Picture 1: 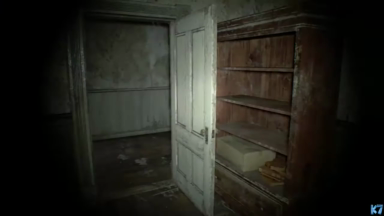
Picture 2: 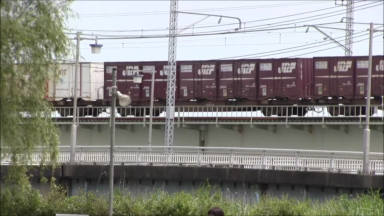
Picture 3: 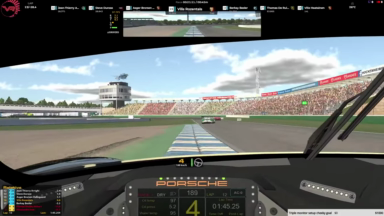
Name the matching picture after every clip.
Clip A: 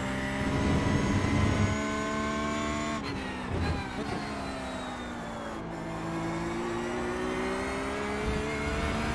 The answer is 3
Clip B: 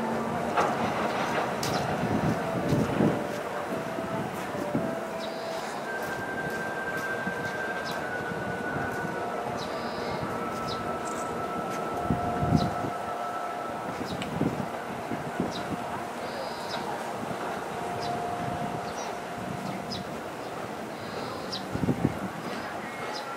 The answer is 2